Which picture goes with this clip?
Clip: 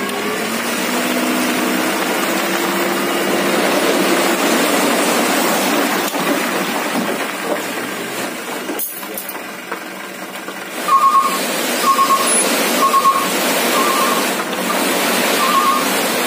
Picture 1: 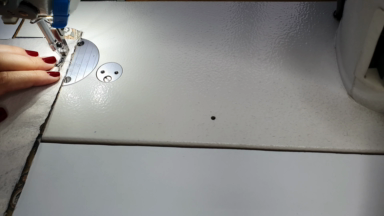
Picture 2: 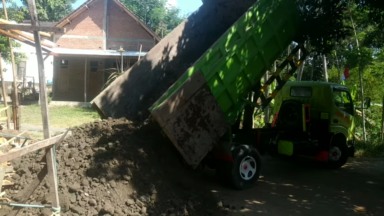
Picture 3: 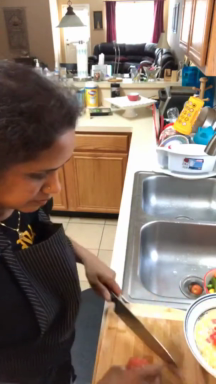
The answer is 2